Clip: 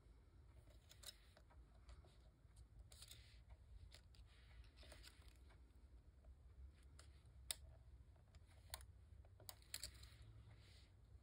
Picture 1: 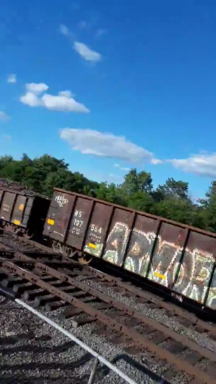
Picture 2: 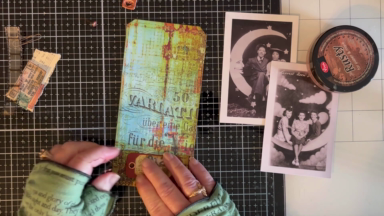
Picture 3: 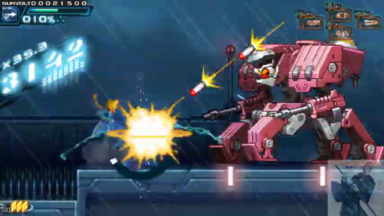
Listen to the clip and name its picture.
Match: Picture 2